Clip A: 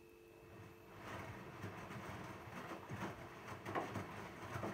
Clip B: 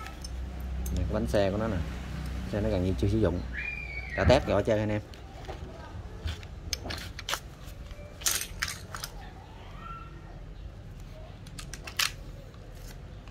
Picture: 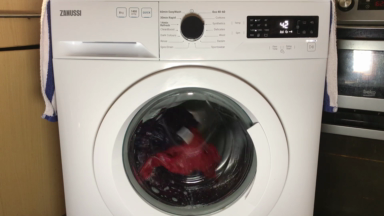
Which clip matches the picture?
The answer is A